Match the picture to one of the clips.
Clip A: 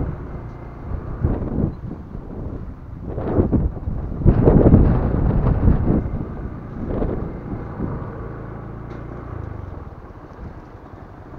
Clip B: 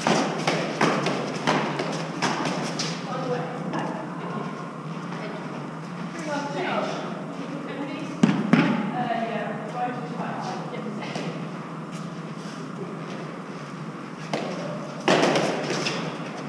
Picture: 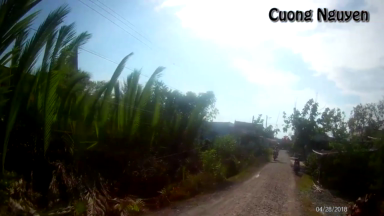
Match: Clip A